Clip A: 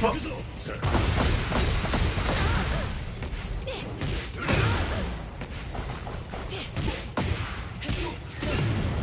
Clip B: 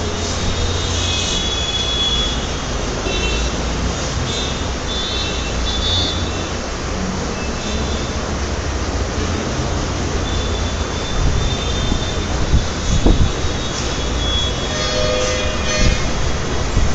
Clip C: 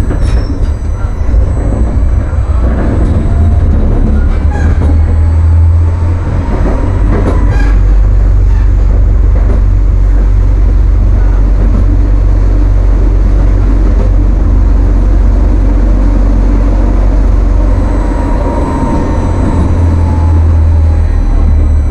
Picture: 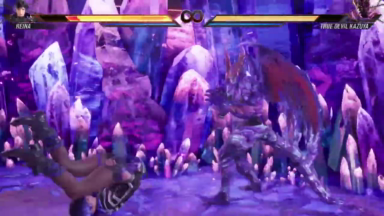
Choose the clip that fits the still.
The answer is A